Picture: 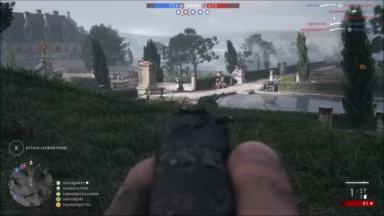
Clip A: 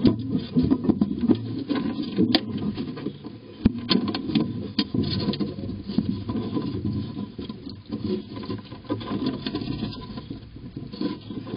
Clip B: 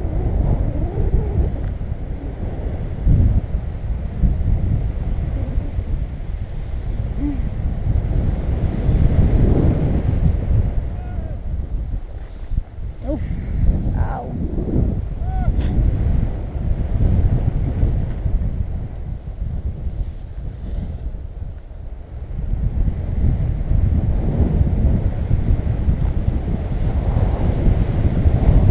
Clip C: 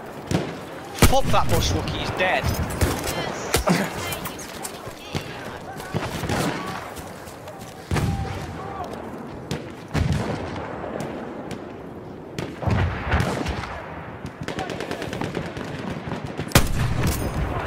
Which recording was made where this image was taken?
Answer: C